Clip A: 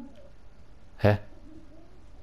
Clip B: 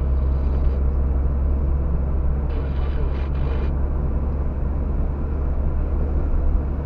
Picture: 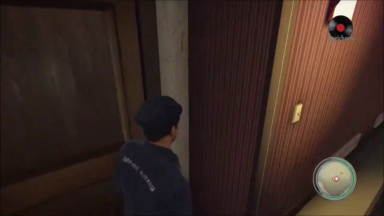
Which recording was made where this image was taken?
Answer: A